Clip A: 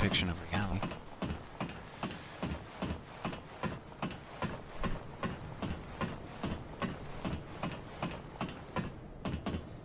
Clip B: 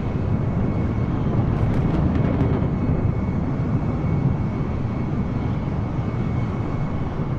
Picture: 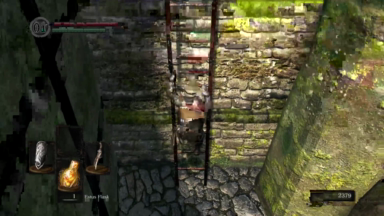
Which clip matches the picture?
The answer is A